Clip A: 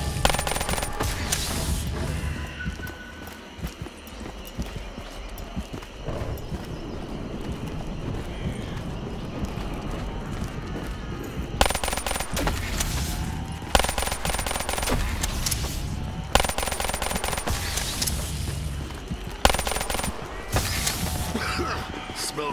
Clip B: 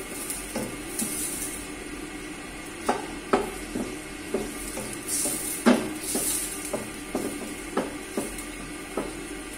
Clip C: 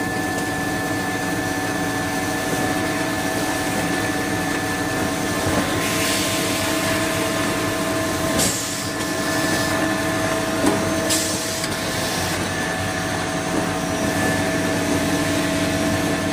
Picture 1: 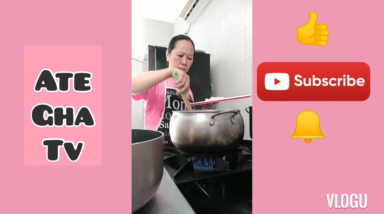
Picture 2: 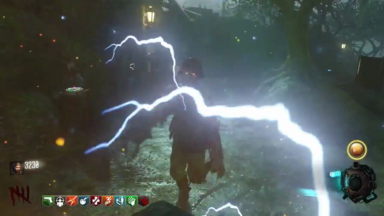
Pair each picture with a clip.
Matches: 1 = B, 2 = A